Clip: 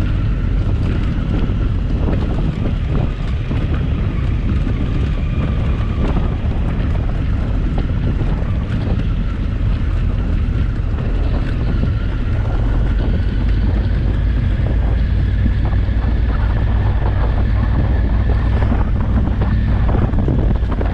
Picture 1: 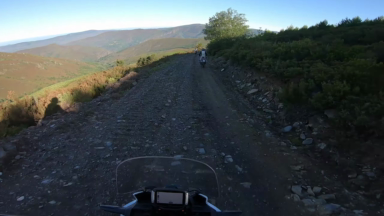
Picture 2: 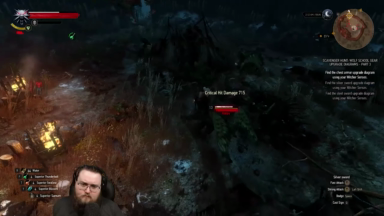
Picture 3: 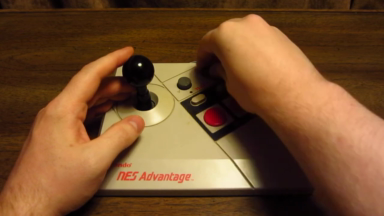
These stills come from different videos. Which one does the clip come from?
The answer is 1